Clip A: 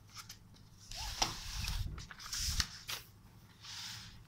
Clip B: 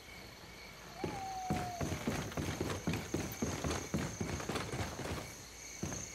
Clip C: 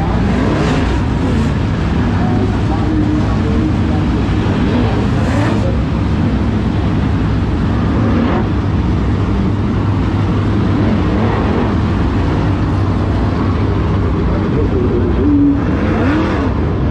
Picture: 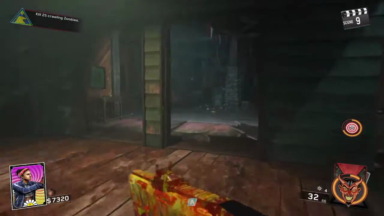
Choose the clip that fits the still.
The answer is B